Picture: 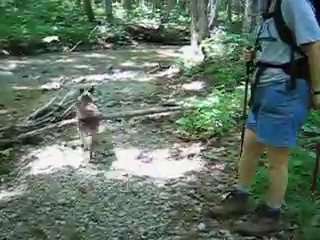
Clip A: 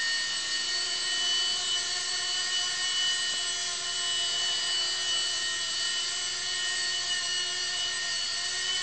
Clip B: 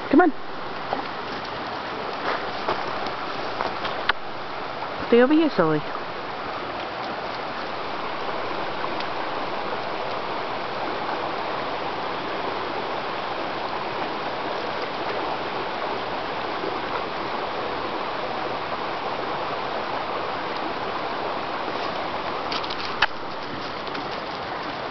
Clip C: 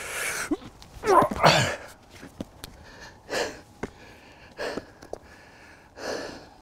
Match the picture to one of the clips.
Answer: B